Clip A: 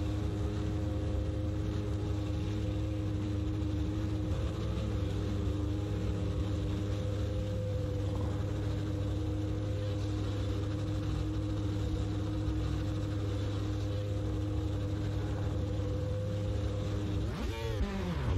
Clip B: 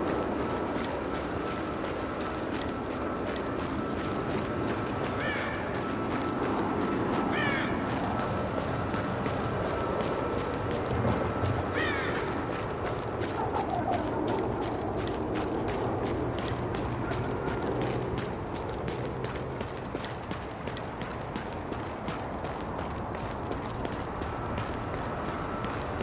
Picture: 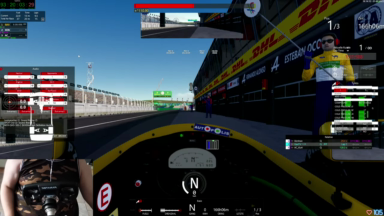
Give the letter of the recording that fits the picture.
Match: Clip A